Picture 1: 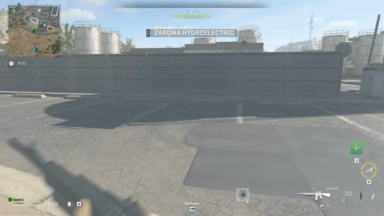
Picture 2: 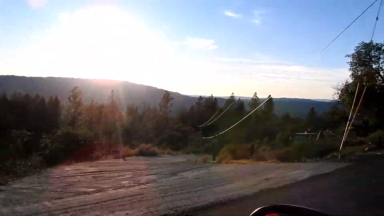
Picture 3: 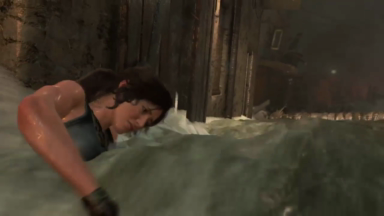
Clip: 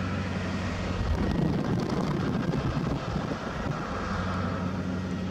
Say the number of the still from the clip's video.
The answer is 2